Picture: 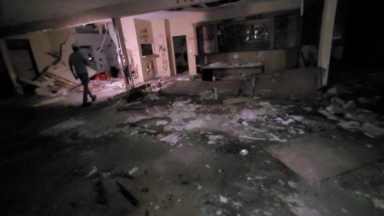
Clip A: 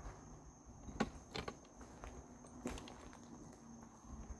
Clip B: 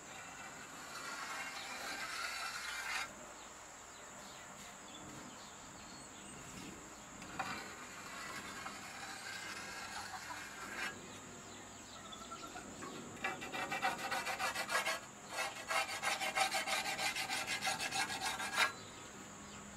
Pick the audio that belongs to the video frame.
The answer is A